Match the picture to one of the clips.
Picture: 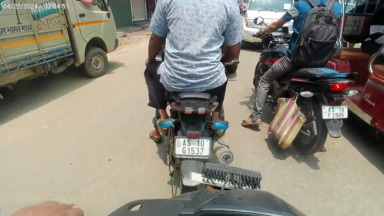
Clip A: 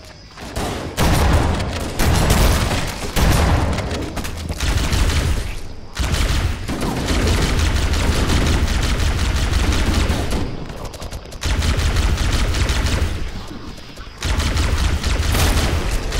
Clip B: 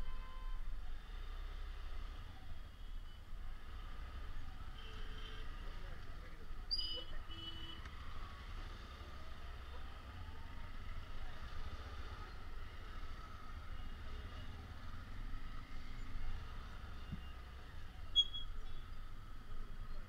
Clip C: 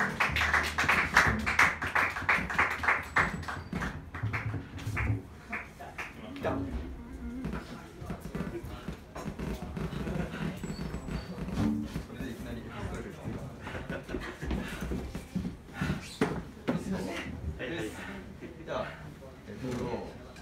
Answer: B